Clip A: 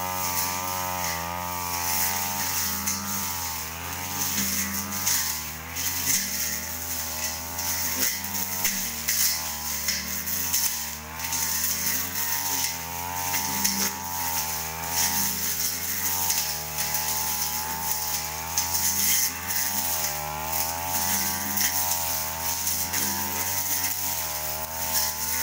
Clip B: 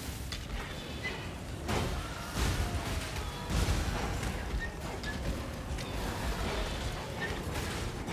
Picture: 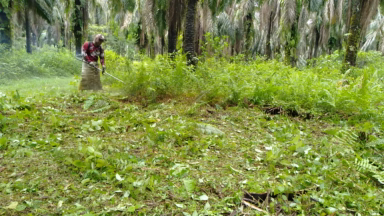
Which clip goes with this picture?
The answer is A